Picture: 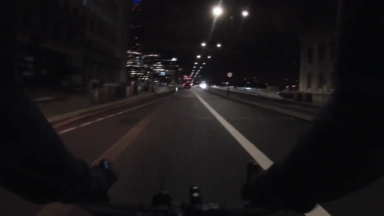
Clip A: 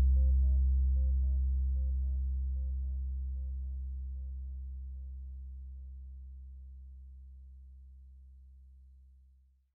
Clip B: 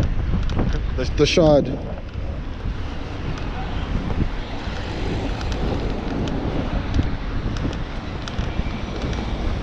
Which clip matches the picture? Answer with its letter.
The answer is B